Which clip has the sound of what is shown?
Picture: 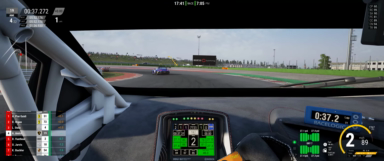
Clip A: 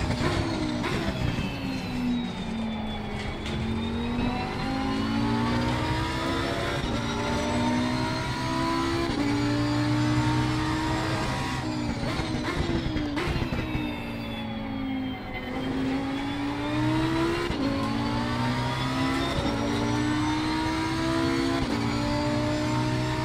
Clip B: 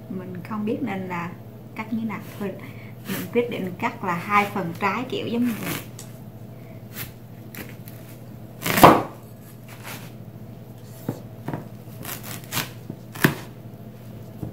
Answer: A